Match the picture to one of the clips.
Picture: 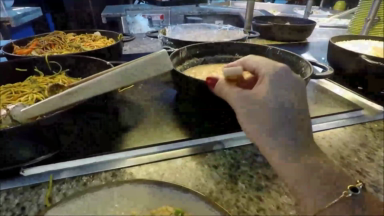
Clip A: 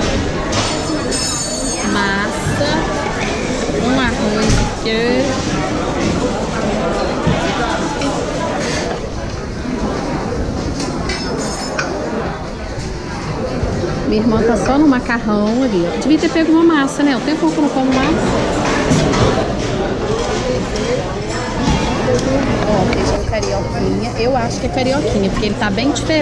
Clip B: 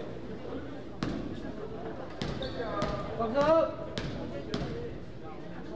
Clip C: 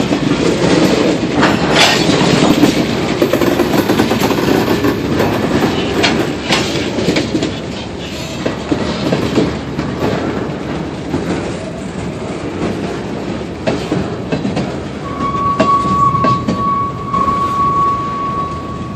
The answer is A